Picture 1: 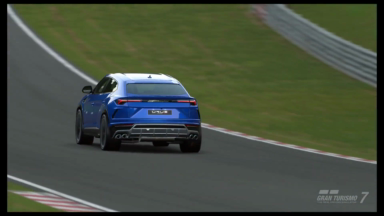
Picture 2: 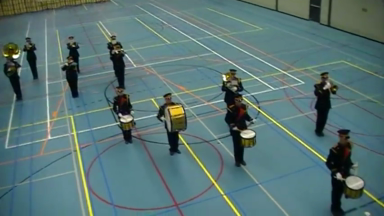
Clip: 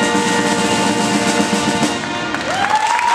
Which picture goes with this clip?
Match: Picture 2